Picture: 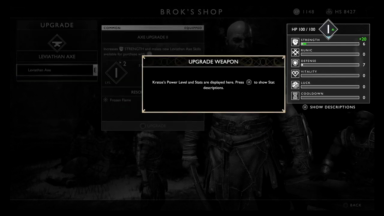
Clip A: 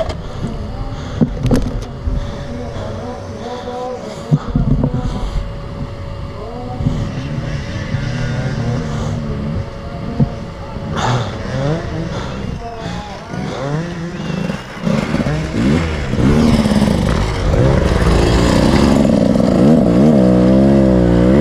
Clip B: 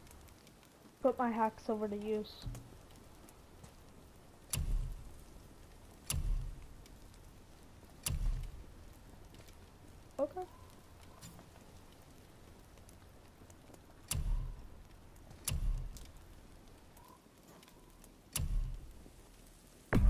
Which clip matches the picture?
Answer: B